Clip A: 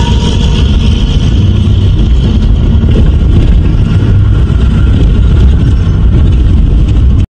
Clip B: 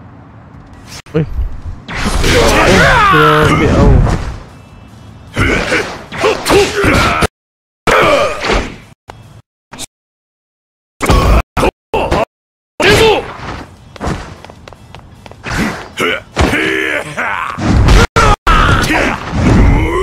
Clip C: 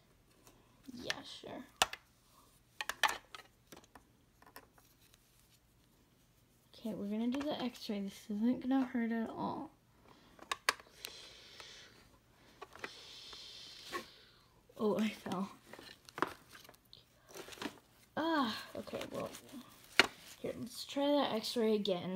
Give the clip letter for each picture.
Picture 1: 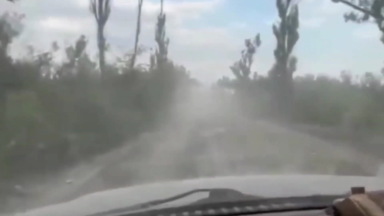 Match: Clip A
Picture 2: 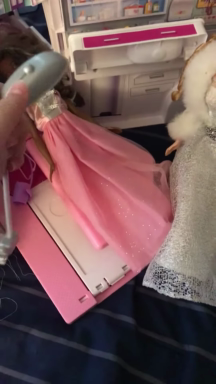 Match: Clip C